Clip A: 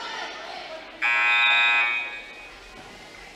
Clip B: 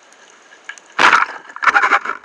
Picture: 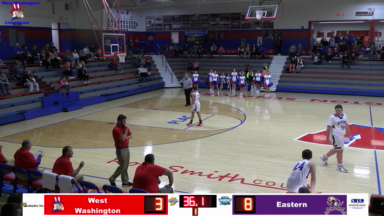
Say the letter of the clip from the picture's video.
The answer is A